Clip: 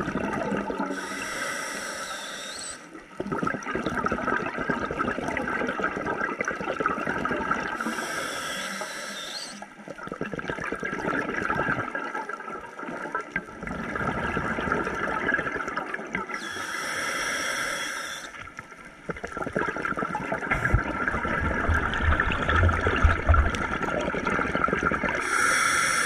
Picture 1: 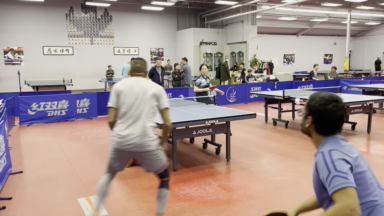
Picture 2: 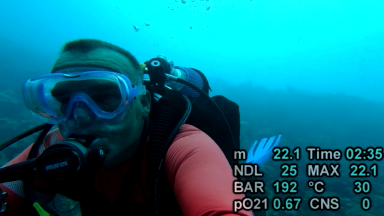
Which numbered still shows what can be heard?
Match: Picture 2